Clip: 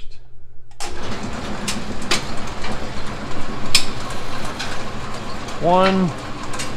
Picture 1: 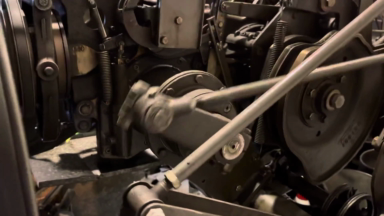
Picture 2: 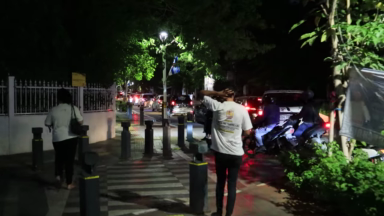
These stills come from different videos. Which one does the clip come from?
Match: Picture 1